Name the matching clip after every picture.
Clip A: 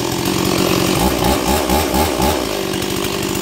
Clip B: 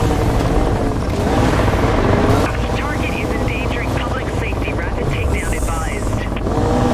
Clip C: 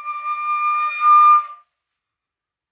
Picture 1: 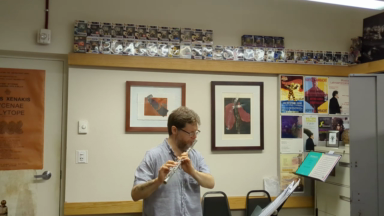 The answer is C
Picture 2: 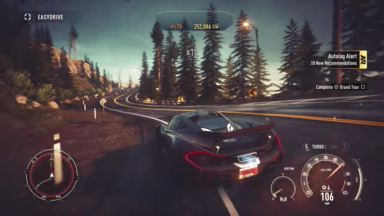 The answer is B